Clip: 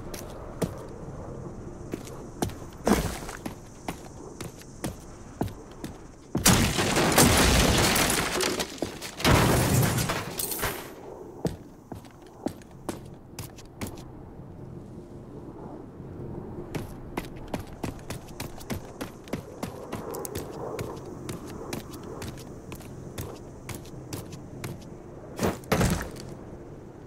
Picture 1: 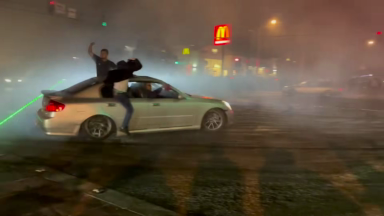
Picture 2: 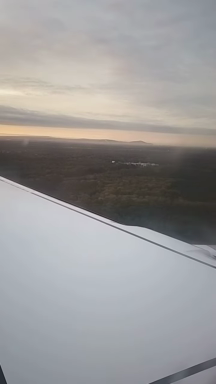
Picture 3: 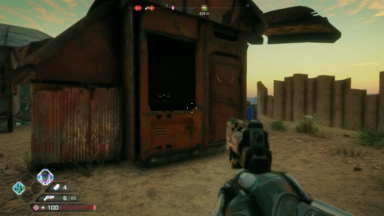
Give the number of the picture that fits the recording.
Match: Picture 3